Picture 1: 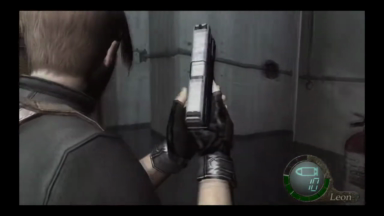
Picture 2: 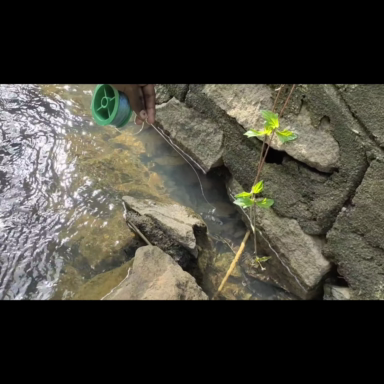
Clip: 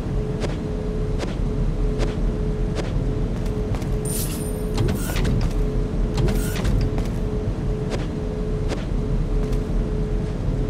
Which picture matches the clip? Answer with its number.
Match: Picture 1